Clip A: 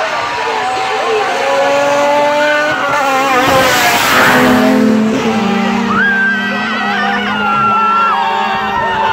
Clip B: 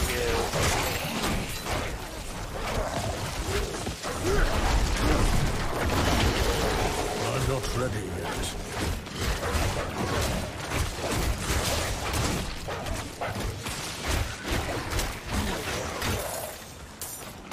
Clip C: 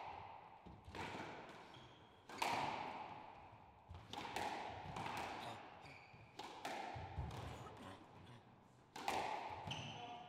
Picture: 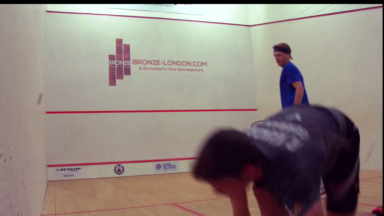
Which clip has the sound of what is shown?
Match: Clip C